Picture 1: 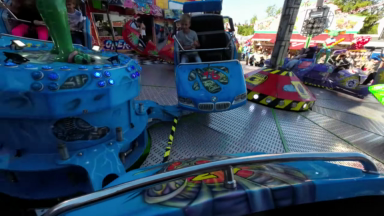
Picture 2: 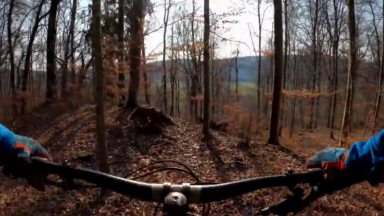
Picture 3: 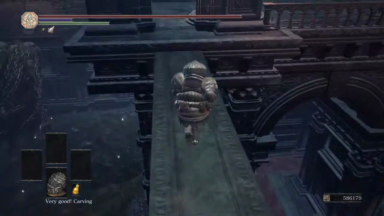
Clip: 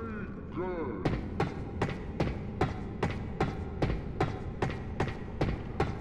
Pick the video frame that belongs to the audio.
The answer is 3